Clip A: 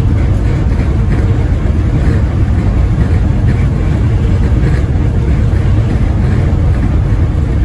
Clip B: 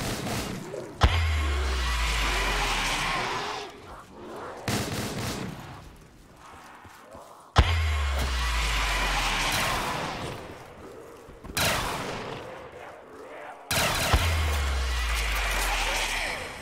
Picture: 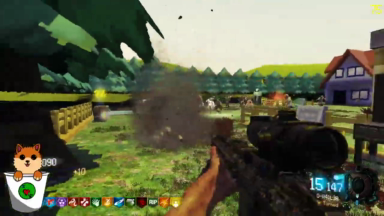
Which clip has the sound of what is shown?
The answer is B